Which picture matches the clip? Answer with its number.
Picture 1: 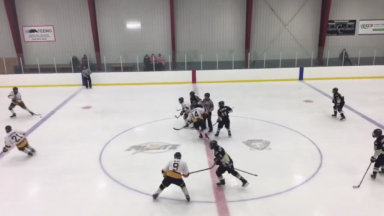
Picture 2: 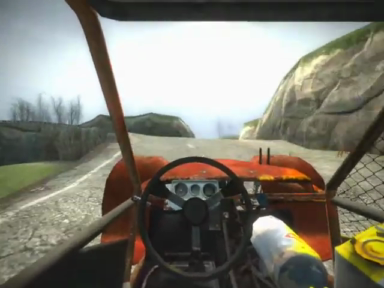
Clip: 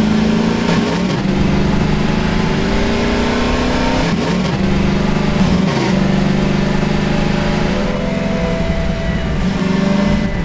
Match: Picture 2